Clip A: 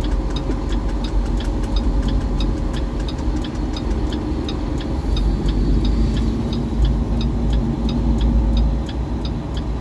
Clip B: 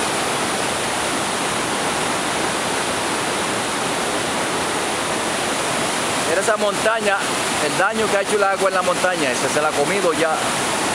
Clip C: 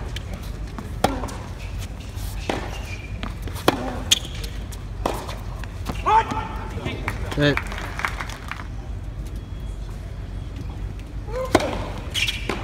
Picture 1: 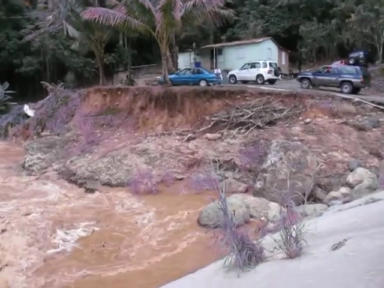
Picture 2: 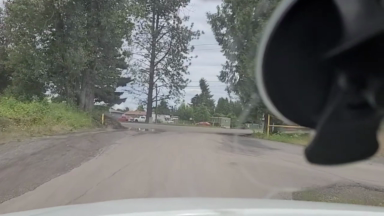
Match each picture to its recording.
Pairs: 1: B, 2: A